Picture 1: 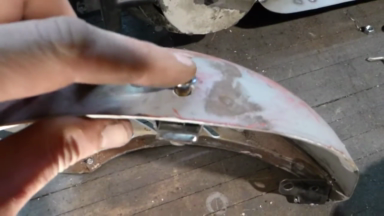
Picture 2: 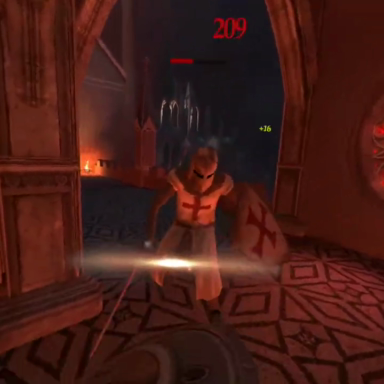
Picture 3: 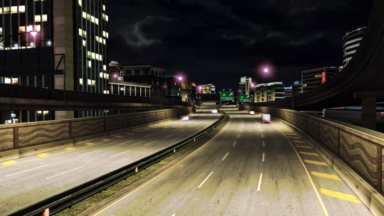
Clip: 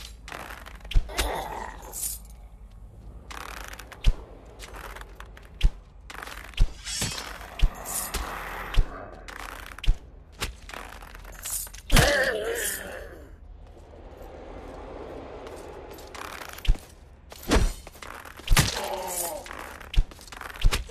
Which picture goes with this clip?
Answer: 2